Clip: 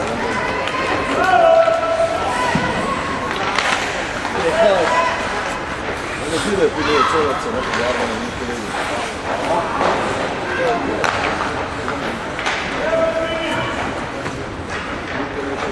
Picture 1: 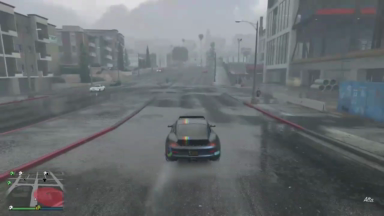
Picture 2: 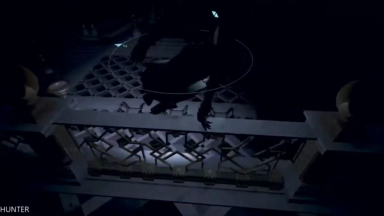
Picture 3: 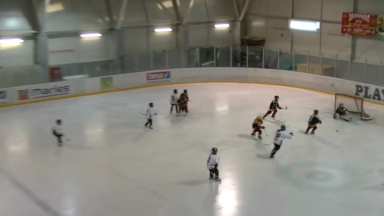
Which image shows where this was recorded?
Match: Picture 3